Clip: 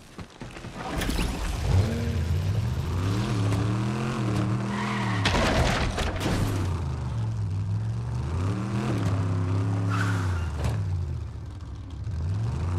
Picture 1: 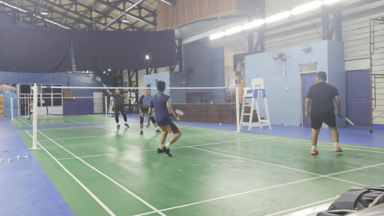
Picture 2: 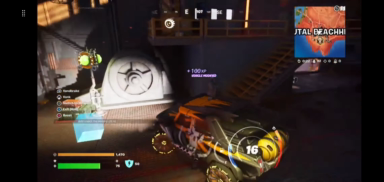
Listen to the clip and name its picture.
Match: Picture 2